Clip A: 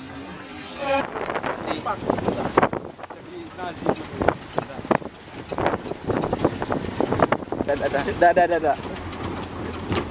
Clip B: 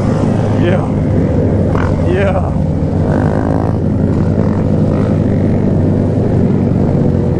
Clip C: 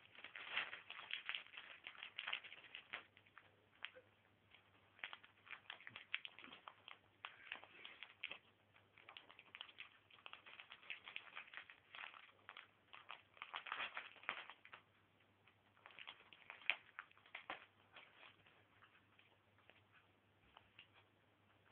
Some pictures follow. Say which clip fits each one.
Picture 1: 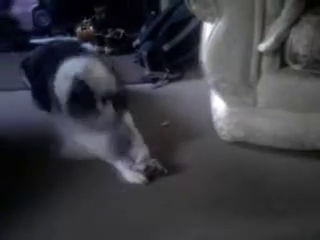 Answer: C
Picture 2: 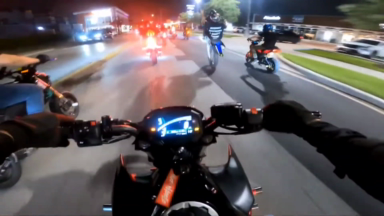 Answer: B